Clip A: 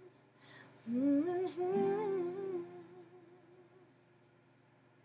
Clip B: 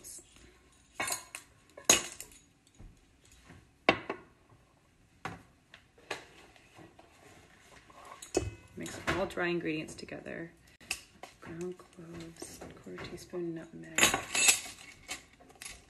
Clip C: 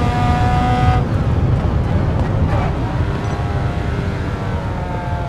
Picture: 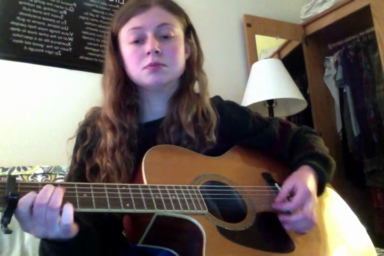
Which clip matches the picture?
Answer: A